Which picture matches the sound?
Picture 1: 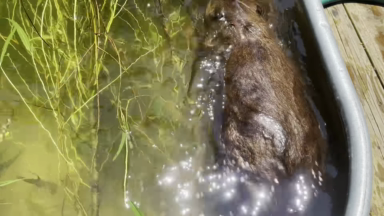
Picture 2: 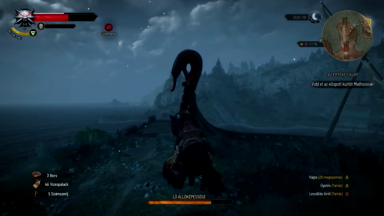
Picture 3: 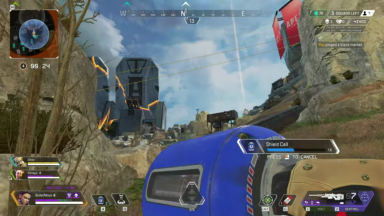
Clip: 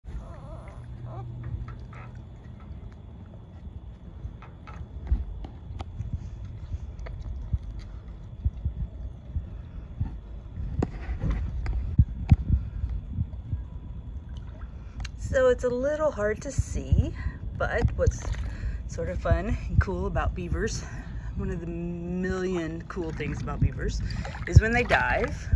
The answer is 1